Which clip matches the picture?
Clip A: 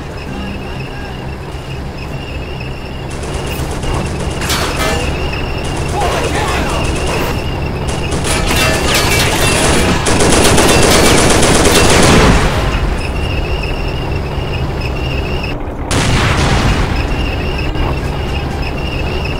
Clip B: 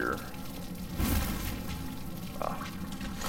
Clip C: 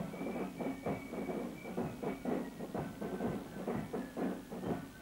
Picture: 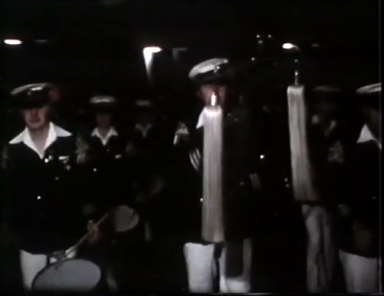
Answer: C